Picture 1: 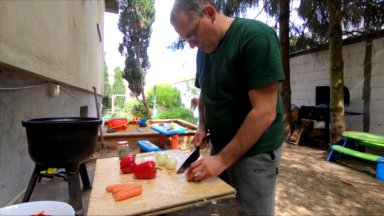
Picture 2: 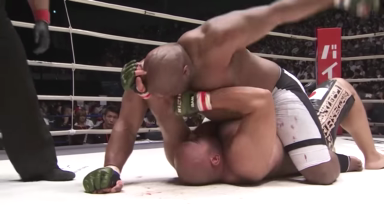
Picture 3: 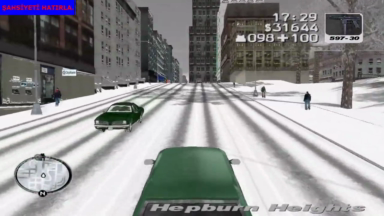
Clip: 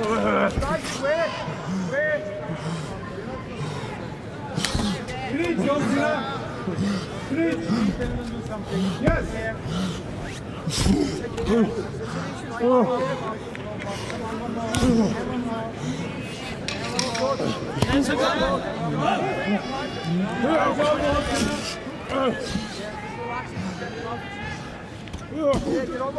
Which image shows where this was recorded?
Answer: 2